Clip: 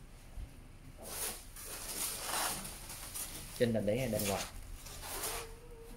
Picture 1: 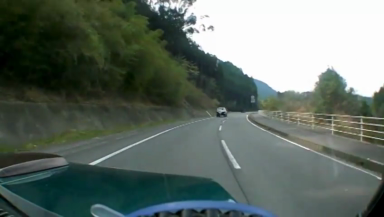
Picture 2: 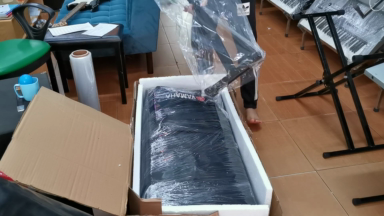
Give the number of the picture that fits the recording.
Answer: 2